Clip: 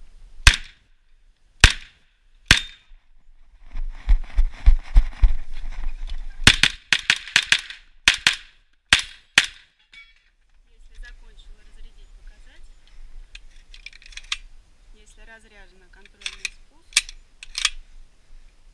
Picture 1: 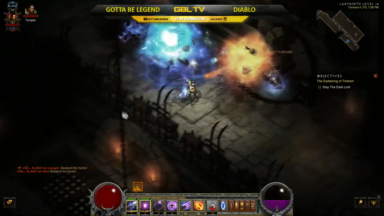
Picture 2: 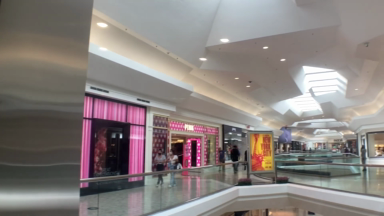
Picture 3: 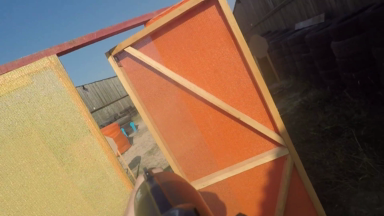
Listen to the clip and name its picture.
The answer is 3